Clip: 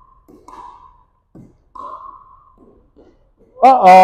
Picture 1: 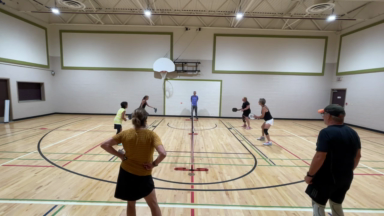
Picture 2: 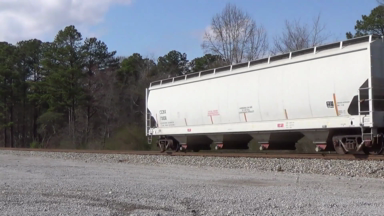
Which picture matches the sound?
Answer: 1